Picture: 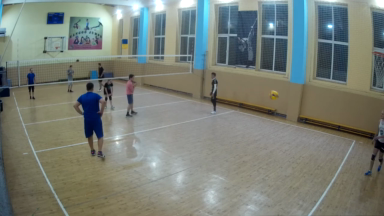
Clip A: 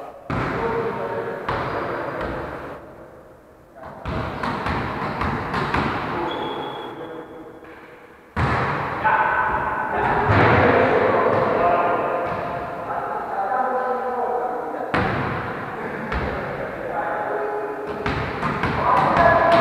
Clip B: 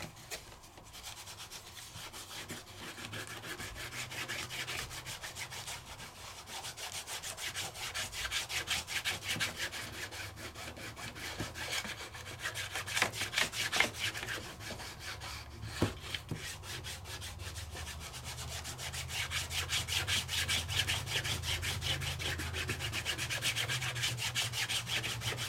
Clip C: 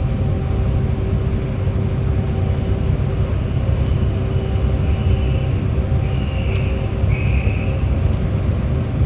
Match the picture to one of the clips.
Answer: A